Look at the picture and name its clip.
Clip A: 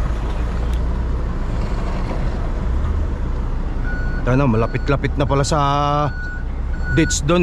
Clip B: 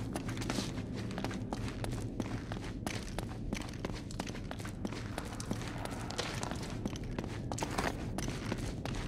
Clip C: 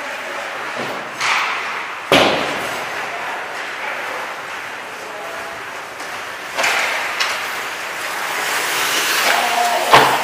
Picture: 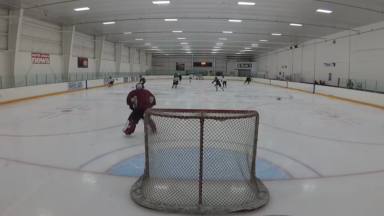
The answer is C